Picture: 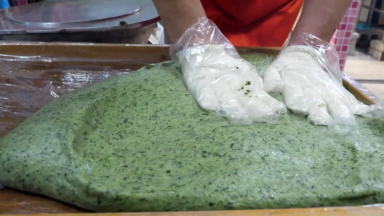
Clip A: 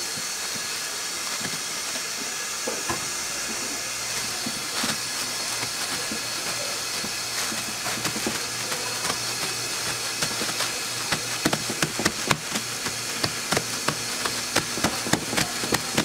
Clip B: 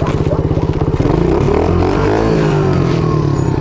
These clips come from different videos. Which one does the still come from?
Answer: A